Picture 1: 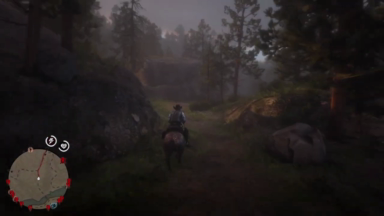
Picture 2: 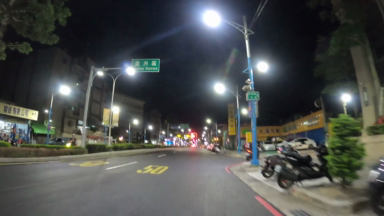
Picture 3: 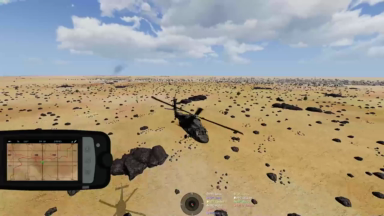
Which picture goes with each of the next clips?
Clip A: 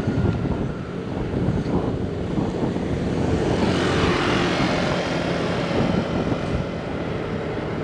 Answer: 2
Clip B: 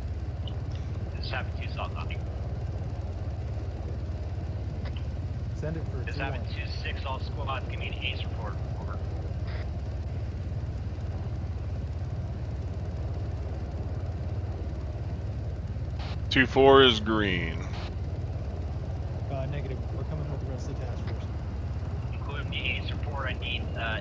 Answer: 3